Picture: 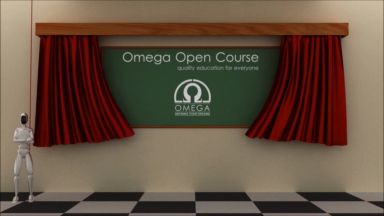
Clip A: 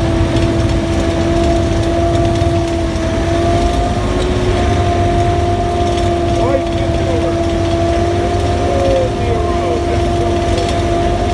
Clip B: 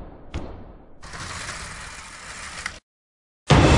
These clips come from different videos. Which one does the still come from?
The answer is B